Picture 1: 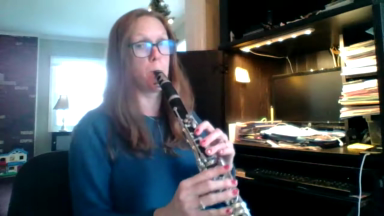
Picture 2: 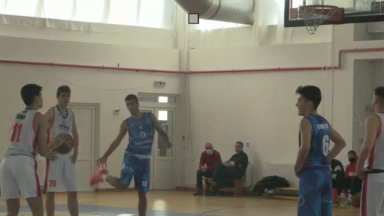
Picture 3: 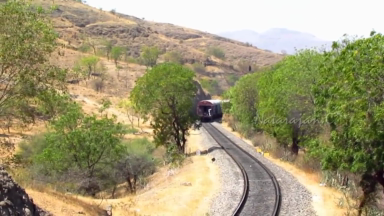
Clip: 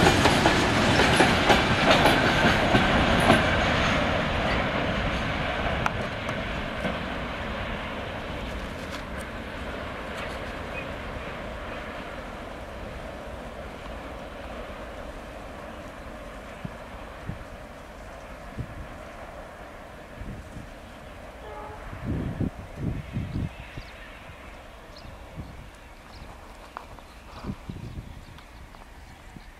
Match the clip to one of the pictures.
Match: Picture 3